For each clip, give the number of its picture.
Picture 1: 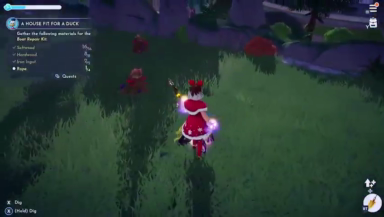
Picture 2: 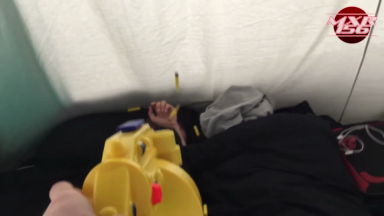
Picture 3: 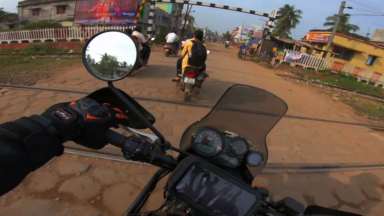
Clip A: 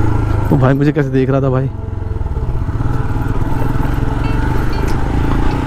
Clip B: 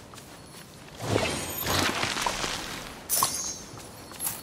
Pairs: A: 3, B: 1